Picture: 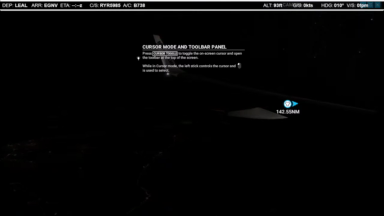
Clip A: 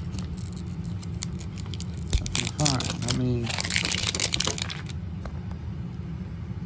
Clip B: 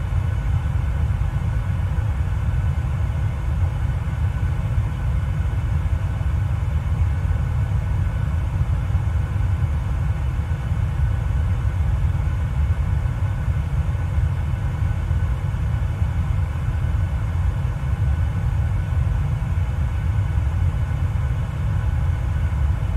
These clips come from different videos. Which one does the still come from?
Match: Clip B